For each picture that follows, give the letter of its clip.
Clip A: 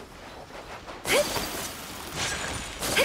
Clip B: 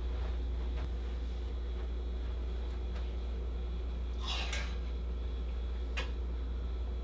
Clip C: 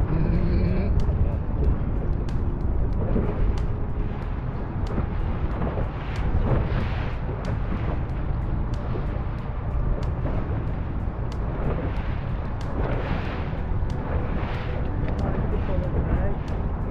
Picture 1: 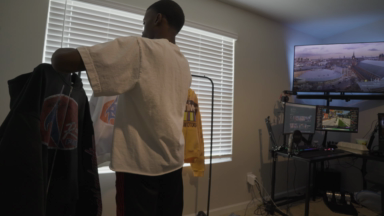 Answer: B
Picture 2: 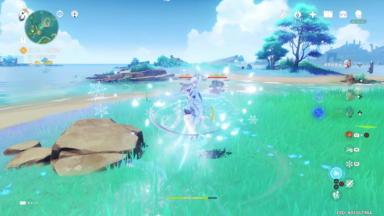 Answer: A